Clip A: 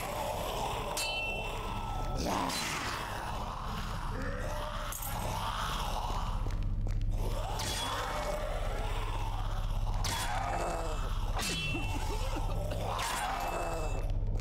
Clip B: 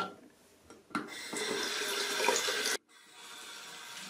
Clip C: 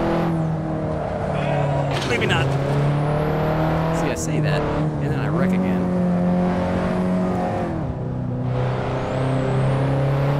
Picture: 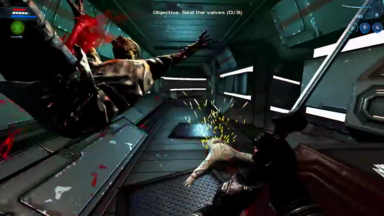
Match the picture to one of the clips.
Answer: A